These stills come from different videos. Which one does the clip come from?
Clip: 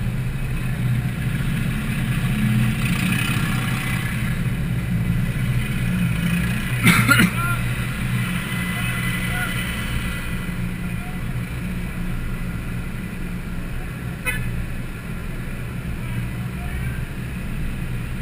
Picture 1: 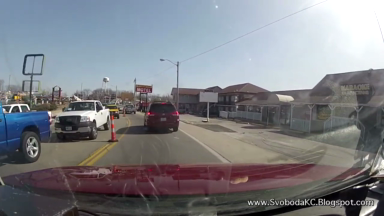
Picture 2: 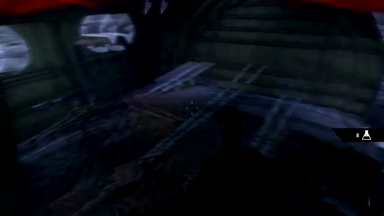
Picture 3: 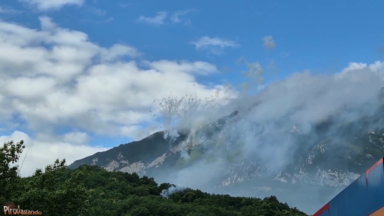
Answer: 1